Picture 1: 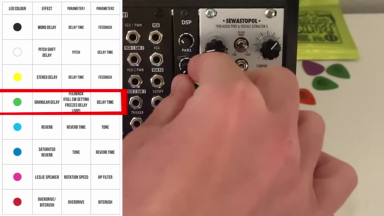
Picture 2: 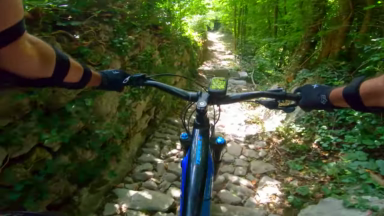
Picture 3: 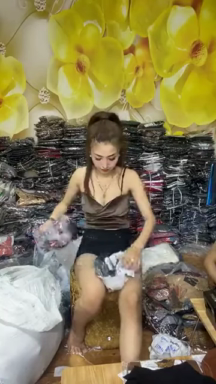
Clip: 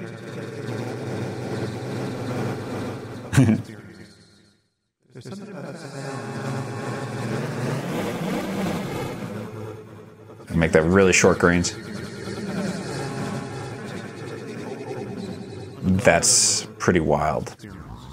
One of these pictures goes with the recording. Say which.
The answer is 1